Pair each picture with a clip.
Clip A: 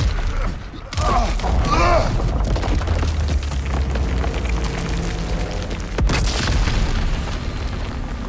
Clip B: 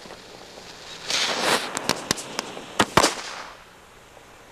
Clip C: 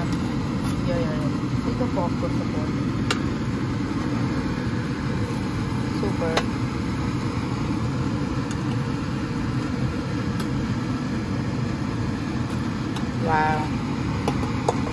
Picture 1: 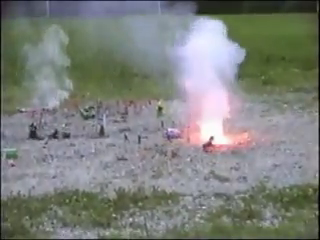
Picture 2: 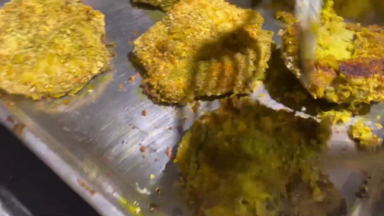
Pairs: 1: B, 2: C